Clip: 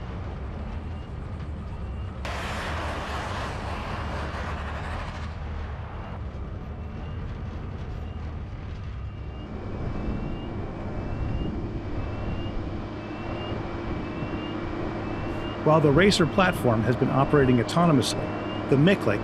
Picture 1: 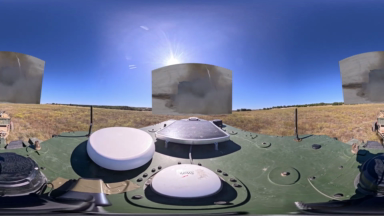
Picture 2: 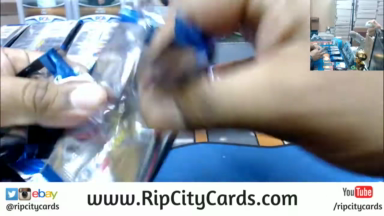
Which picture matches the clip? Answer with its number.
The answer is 1